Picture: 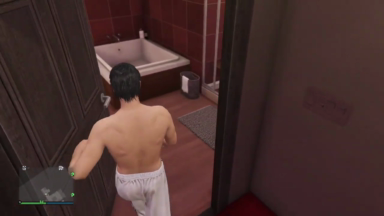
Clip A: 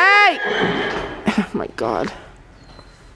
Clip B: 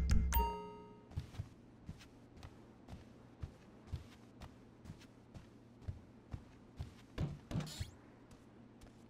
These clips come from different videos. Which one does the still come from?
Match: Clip B